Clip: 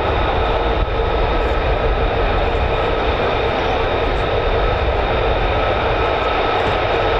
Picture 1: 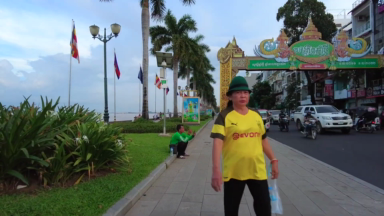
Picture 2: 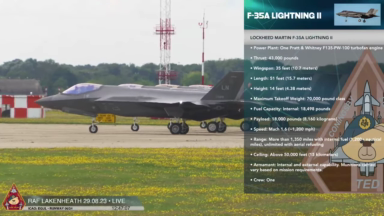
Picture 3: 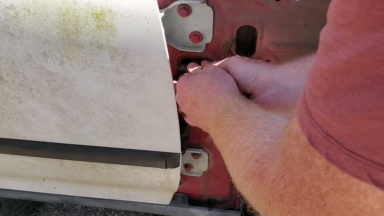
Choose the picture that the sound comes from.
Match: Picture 2